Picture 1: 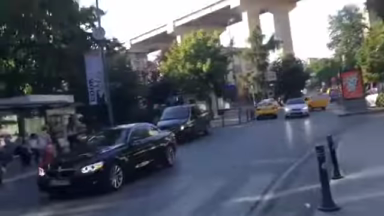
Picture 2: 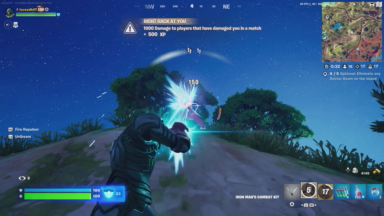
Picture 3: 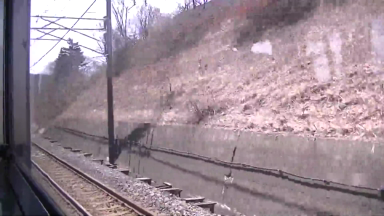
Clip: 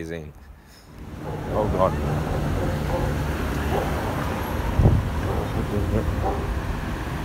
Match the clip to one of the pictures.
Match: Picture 1